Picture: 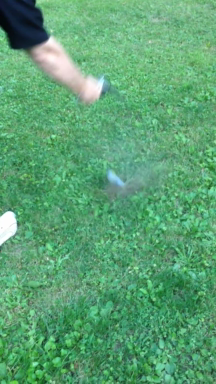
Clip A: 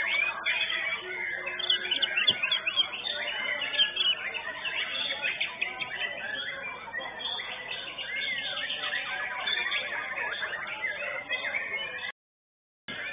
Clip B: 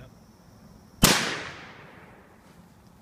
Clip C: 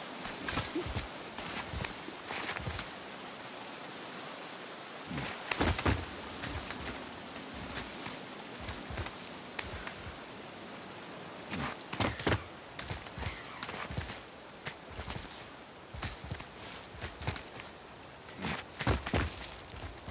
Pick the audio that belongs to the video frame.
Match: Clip B